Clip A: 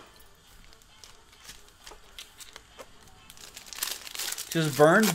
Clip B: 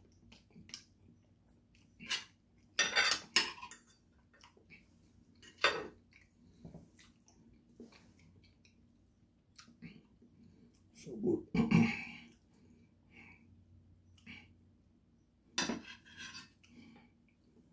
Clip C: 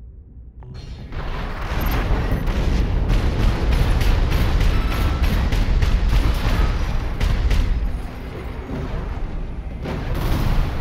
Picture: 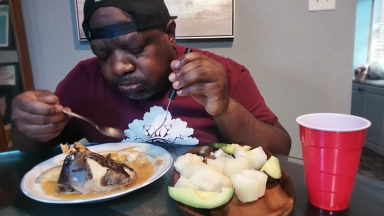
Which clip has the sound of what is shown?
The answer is B